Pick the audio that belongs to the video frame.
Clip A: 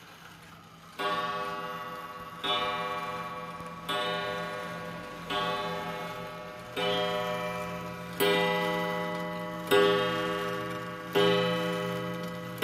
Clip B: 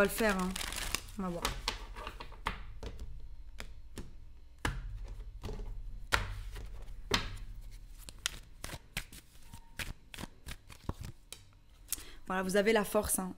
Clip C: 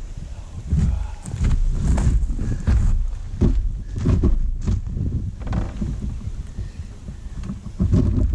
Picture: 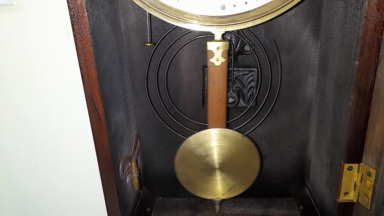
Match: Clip A